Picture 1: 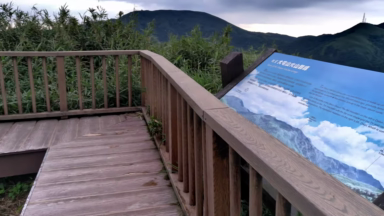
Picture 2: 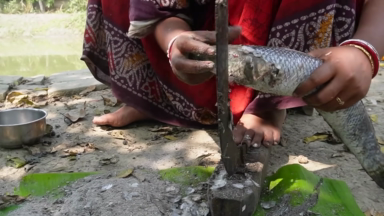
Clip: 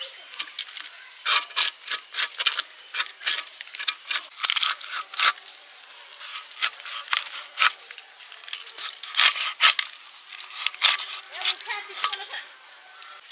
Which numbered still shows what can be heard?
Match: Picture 2